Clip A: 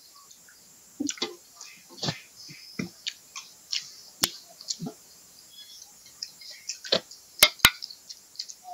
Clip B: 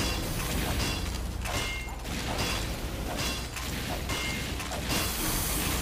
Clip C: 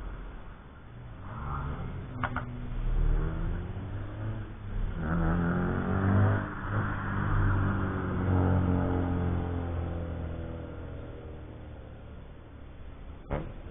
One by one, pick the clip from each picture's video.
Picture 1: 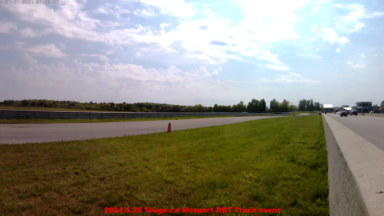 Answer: C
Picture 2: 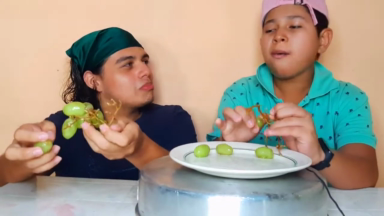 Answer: A